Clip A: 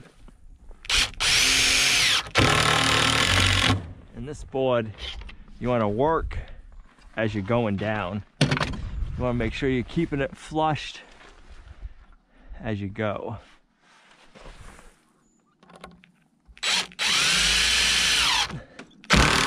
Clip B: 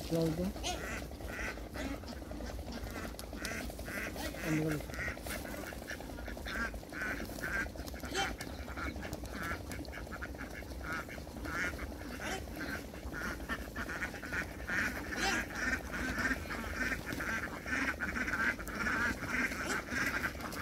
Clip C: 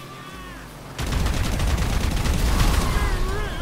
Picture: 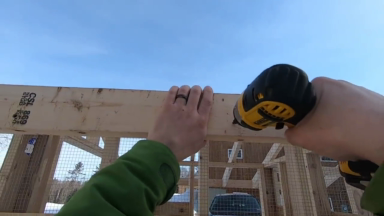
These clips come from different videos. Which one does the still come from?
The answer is A